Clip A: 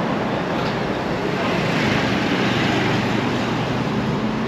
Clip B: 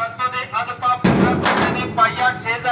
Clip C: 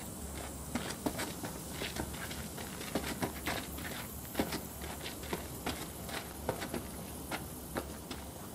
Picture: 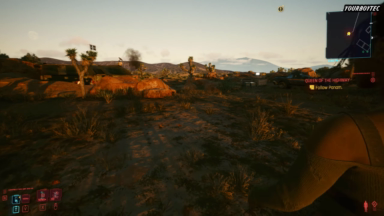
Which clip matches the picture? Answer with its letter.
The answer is C